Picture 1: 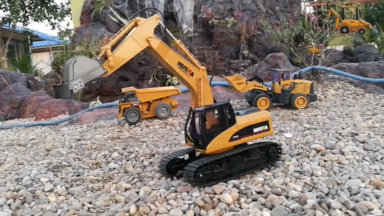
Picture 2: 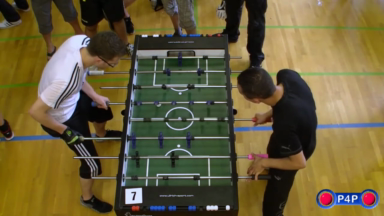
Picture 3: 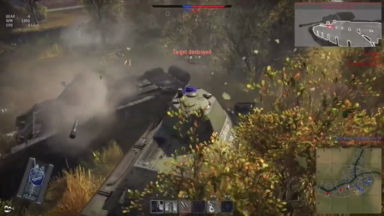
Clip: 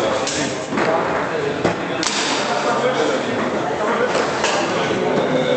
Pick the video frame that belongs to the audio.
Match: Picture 2